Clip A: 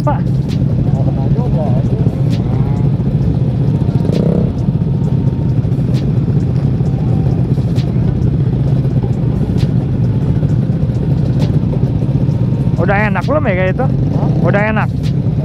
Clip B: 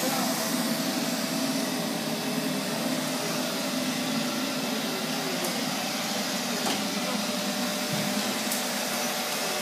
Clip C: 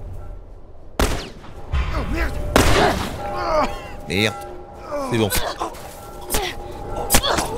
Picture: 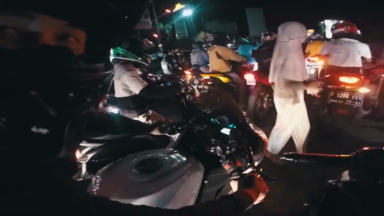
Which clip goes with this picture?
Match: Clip A